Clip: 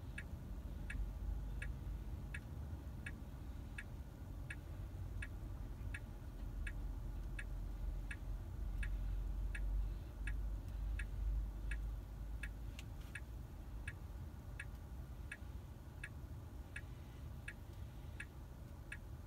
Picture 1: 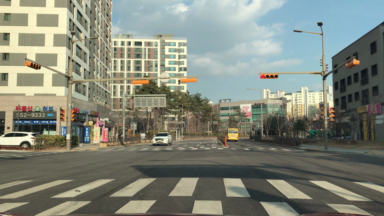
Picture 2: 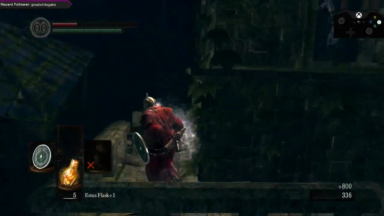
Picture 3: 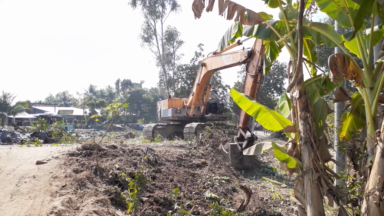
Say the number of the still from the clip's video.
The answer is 1